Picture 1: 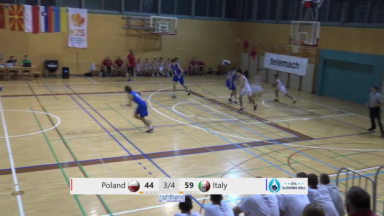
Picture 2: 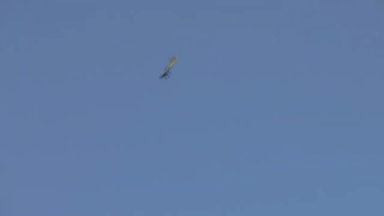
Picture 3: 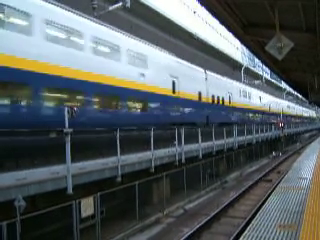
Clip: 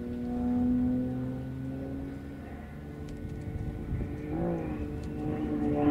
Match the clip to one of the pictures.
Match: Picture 2